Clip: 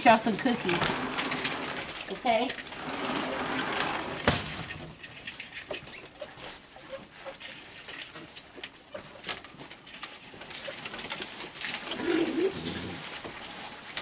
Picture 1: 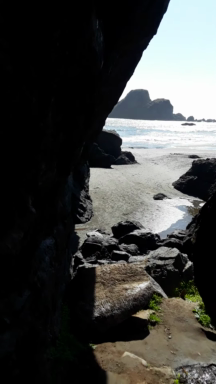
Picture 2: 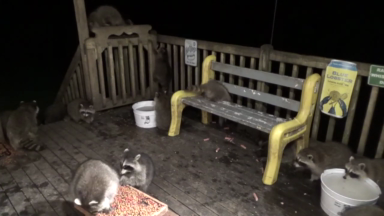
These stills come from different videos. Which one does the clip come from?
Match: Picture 2